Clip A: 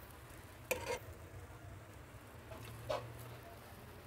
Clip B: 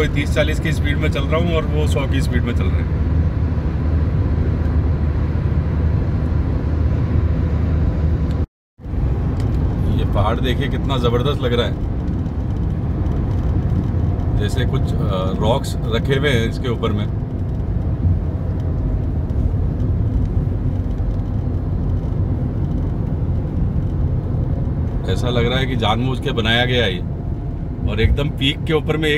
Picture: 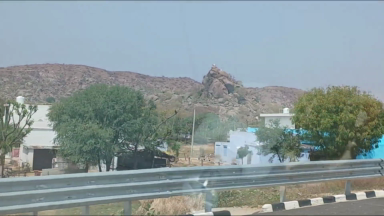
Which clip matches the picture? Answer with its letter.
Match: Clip B